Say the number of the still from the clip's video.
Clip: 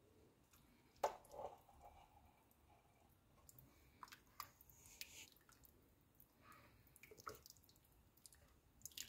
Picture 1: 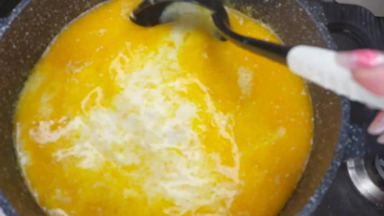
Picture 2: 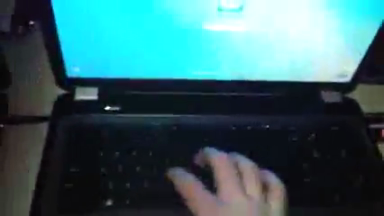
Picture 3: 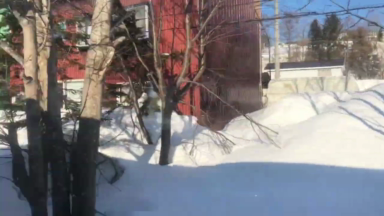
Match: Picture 1